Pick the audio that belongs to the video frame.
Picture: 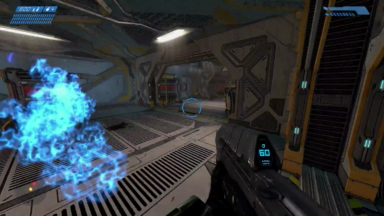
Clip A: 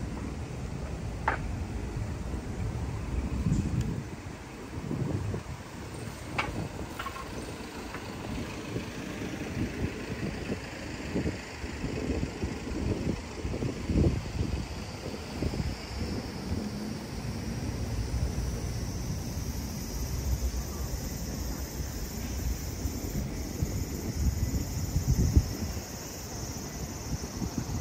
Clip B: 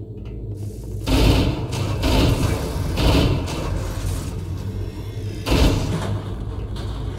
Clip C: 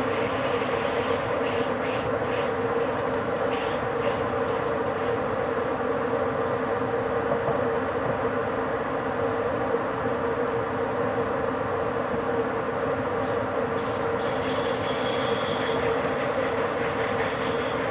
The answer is B